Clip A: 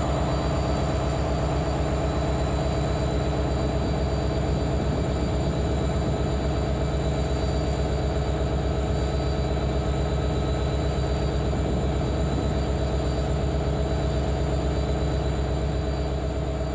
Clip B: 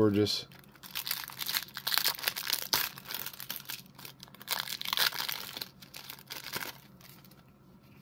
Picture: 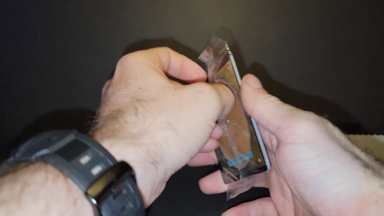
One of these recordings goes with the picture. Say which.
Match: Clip B